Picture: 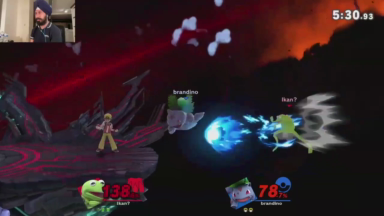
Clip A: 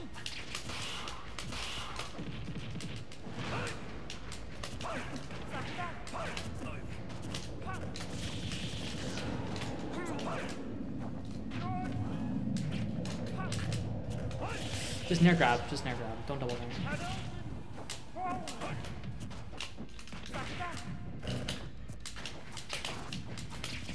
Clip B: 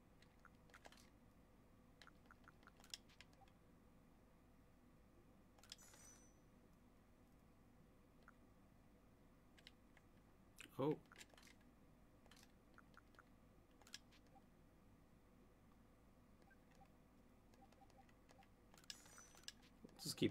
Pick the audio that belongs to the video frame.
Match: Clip A